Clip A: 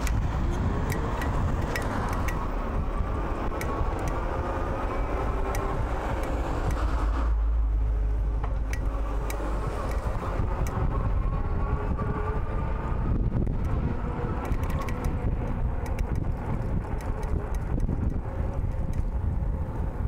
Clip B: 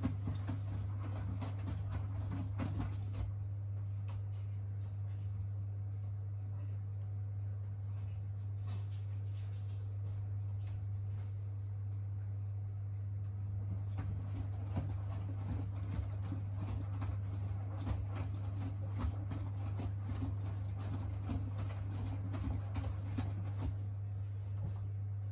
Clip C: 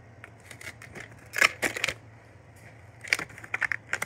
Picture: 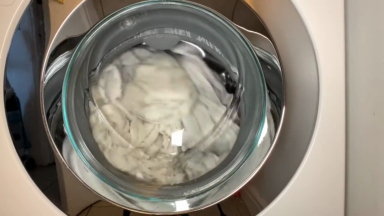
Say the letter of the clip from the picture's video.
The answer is B